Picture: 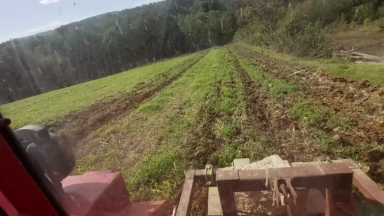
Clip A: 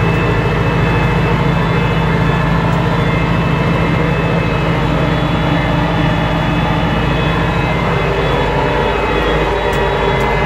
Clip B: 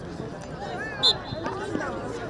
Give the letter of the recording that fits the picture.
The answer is A